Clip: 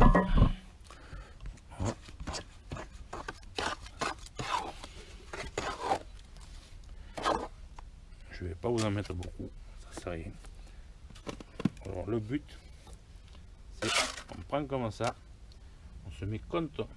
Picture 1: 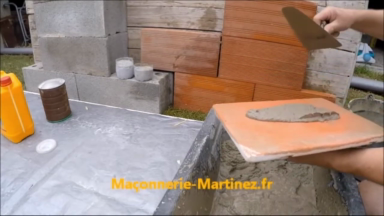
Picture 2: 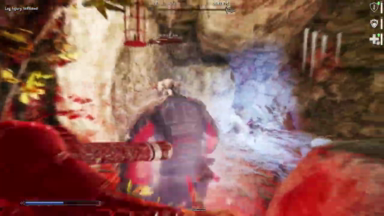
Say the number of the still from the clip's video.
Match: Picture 1